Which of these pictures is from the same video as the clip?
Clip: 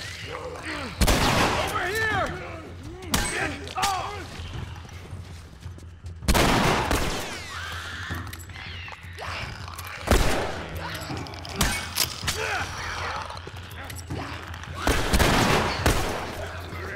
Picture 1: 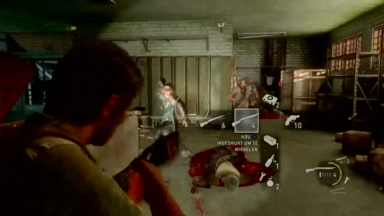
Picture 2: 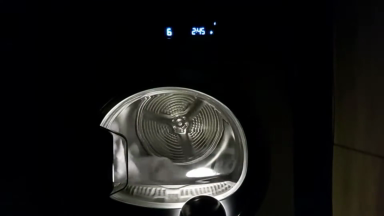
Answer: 1